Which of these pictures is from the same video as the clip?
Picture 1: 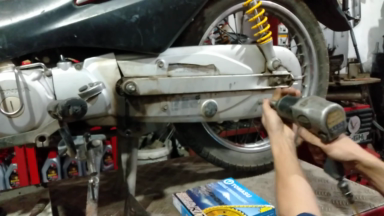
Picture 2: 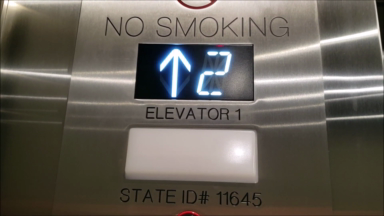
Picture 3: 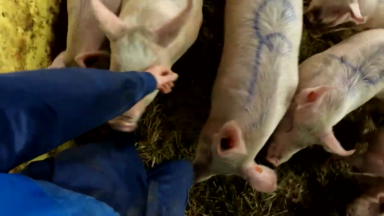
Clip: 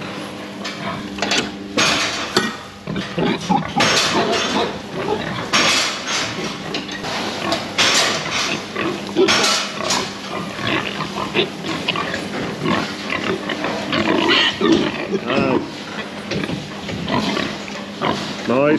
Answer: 3